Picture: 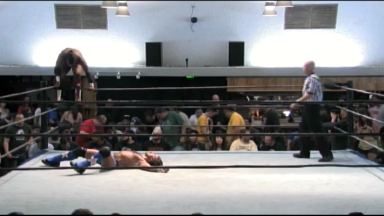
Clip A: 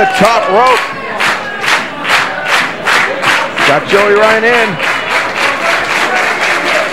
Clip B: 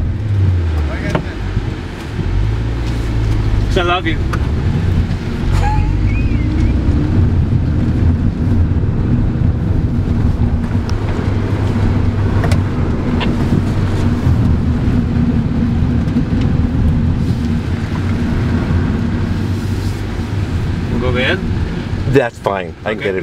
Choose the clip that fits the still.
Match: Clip A